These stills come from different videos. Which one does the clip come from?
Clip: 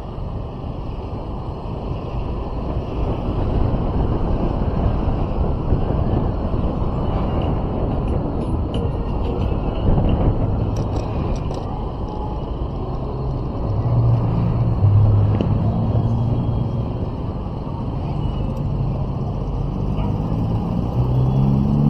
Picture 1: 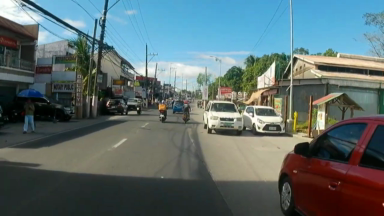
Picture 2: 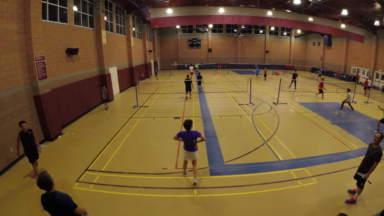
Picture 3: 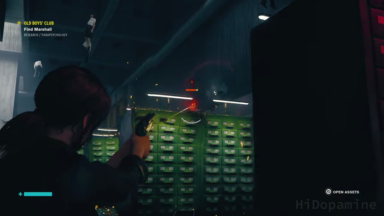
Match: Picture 1